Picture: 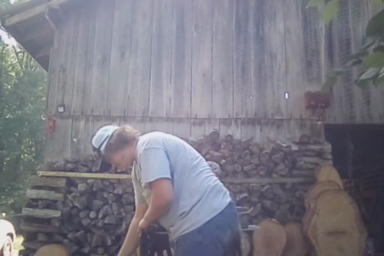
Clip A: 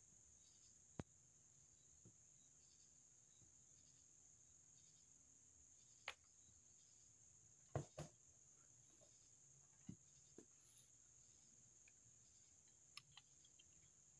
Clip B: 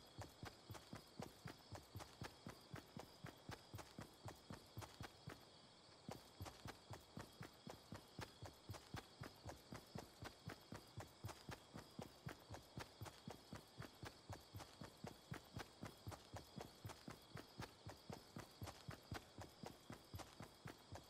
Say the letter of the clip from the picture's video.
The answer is A